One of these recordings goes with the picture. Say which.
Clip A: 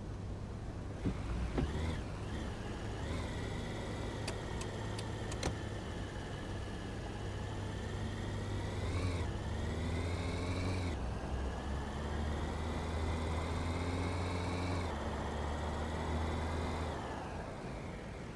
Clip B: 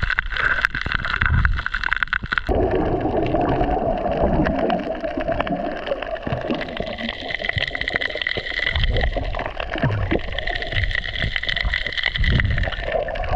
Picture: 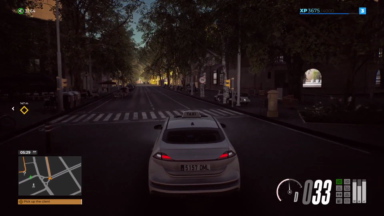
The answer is A